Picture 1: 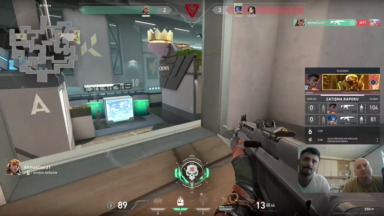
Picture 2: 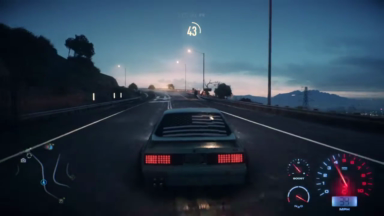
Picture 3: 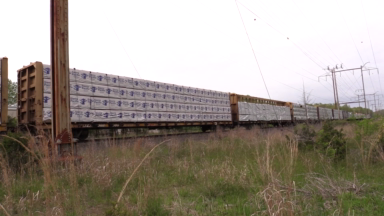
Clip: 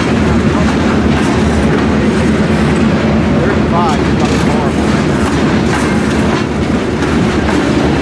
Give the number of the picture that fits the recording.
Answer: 3